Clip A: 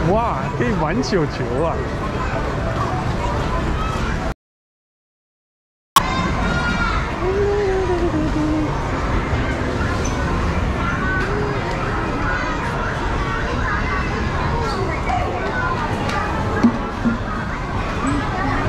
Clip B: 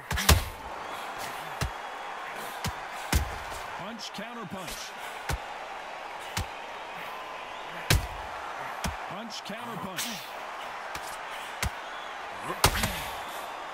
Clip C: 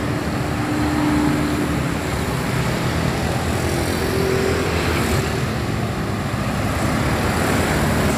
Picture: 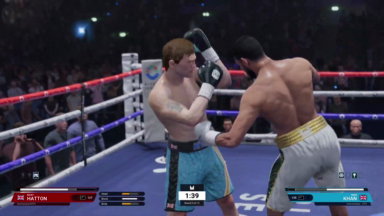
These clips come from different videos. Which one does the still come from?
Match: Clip B